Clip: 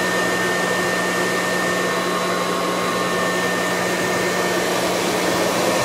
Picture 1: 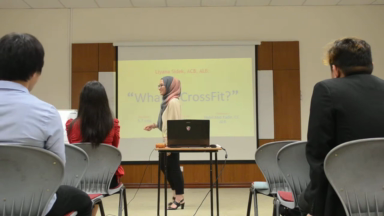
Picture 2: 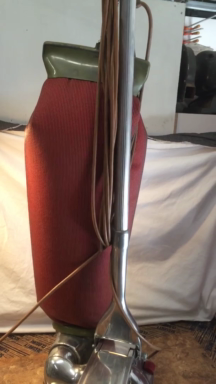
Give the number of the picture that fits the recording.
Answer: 2